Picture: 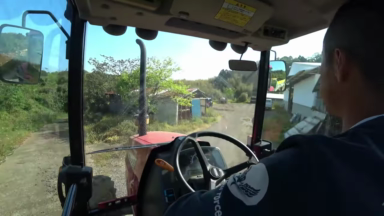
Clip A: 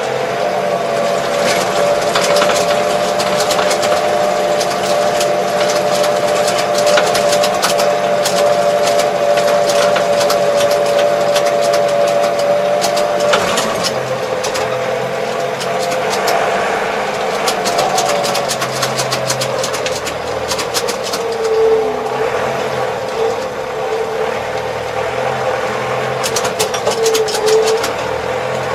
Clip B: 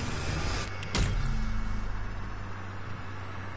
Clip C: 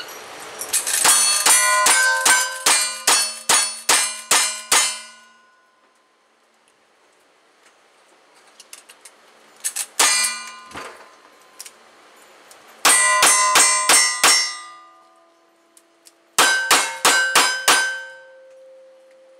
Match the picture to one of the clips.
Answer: A